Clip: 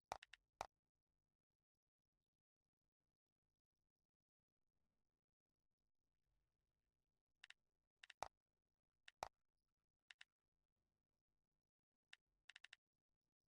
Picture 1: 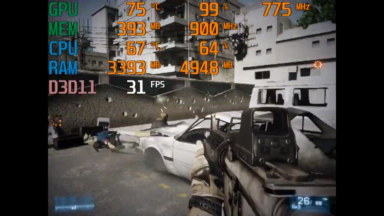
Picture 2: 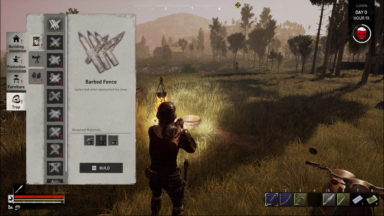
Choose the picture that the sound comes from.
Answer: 2